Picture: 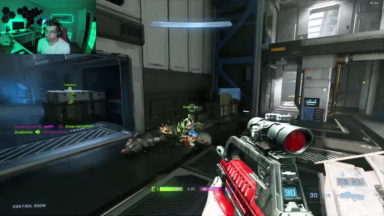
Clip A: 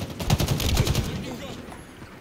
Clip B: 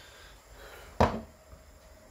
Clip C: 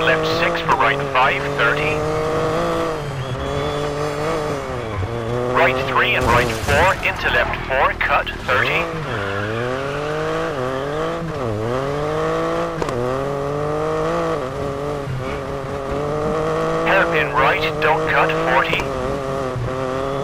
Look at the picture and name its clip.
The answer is A